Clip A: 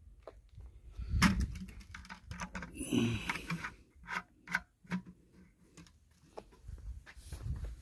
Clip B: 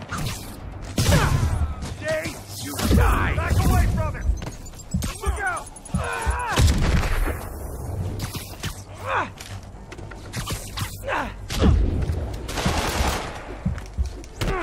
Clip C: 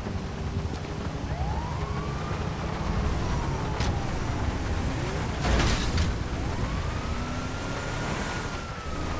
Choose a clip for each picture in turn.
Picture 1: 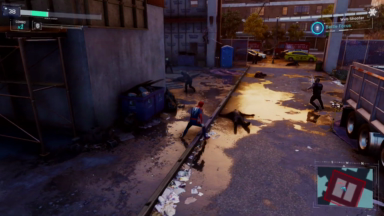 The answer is B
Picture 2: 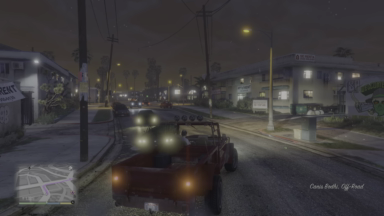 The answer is C